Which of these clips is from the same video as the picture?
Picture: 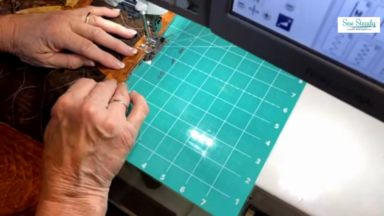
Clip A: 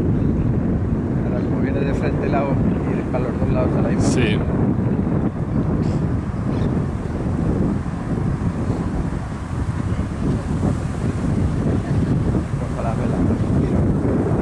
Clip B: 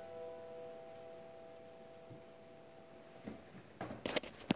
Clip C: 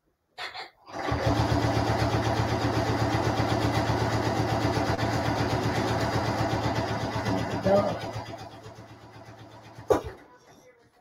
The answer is C